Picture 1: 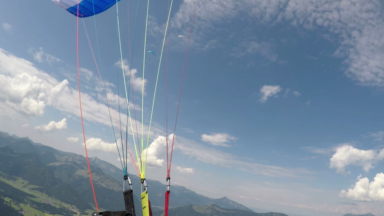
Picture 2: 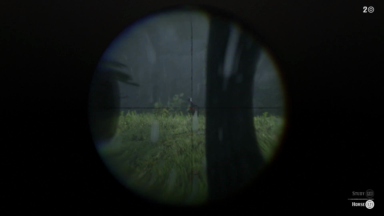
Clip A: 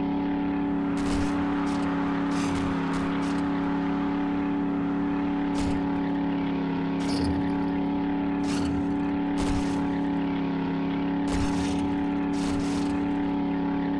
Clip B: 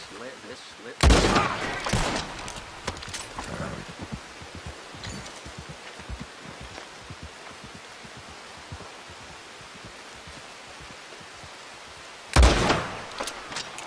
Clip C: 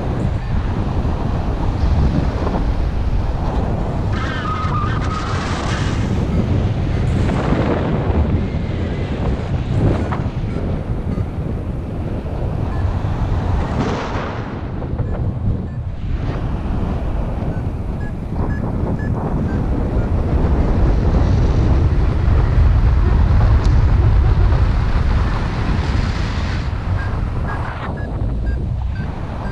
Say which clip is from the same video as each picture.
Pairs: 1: C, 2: B